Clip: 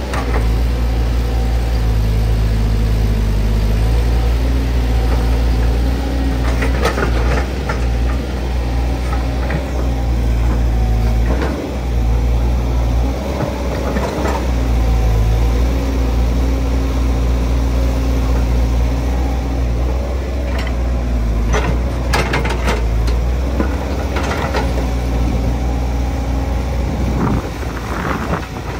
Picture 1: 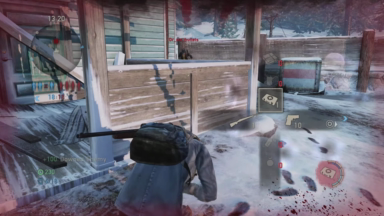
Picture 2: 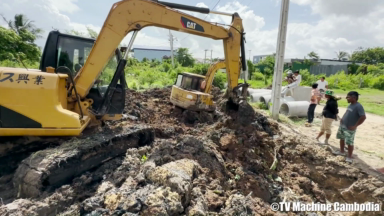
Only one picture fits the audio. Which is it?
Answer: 2